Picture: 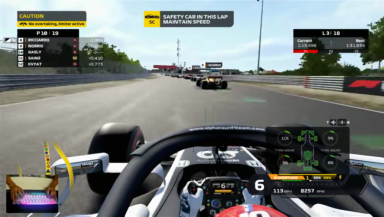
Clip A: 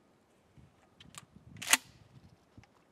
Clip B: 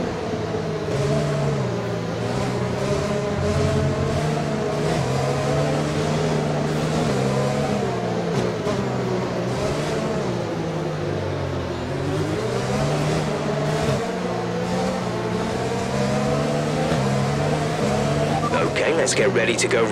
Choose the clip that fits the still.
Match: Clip B